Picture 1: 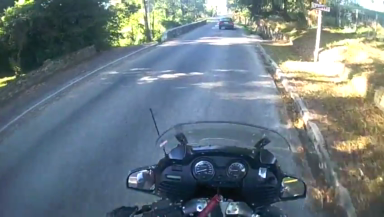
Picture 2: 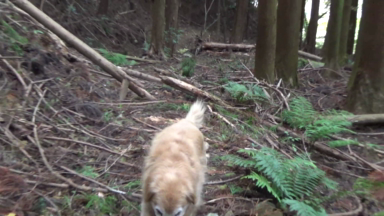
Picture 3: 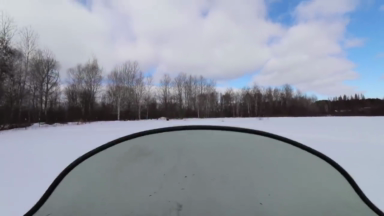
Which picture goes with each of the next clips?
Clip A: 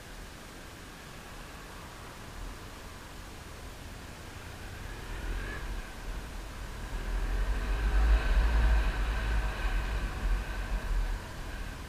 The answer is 1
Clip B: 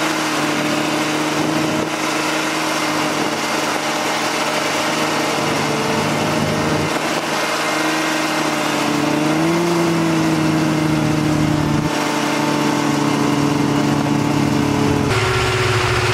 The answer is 3